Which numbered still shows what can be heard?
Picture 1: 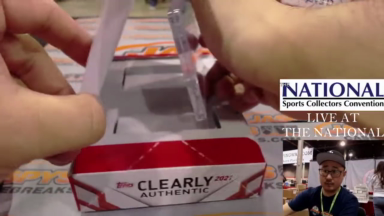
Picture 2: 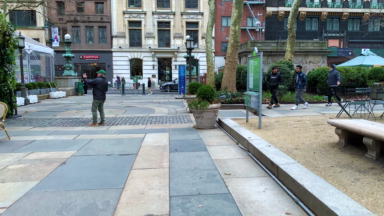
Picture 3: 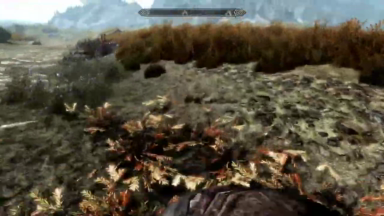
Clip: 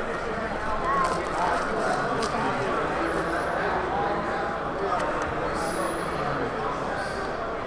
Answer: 1